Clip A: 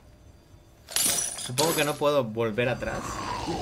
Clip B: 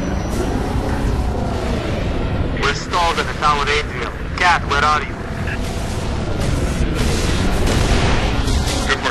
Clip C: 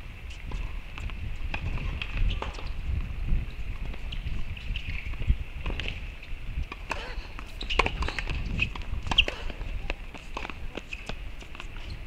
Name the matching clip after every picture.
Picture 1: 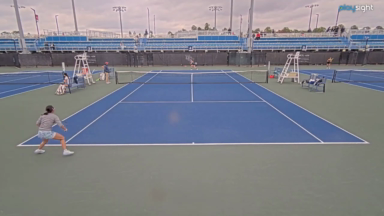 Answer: C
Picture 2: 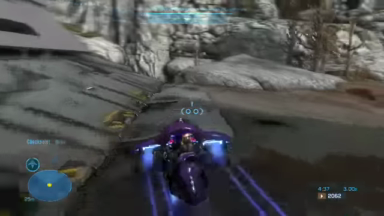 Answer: B